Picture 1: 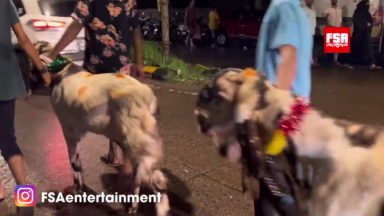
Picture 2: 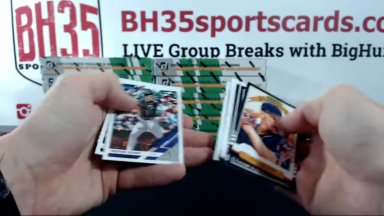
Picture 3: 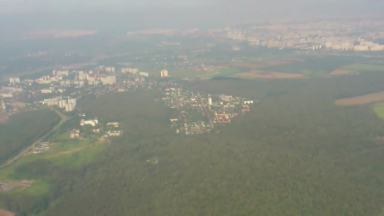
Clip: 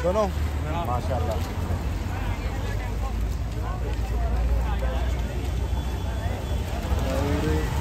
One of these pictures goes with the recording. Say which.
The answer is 1